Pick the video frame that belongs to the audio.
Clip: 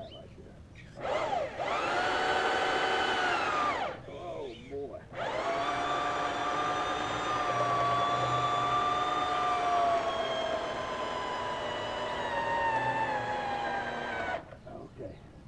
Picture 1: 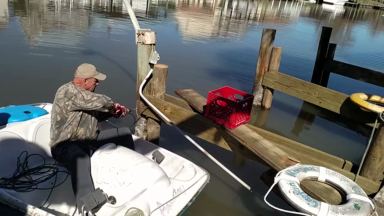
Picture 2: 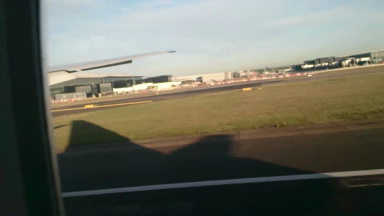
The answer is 1